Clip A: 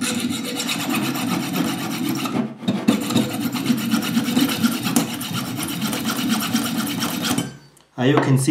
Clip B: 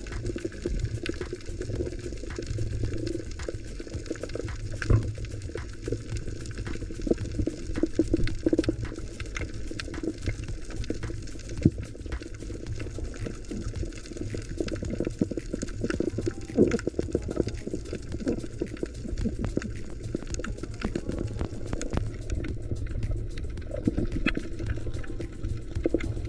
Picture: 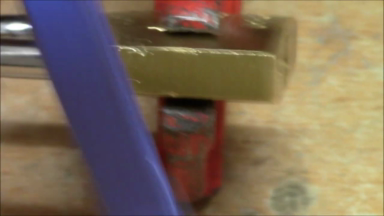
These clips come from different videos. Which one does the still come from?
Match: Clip A